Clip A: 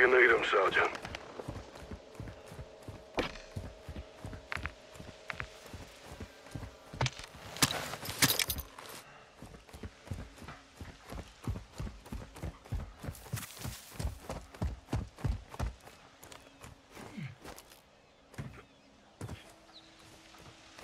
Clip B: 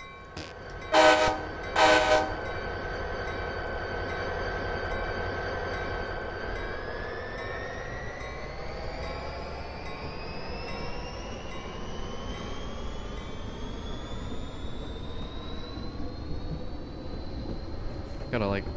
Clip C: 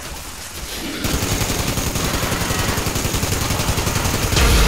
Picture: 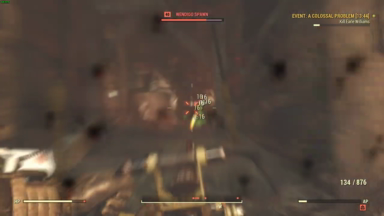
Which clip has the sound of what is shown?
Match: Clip C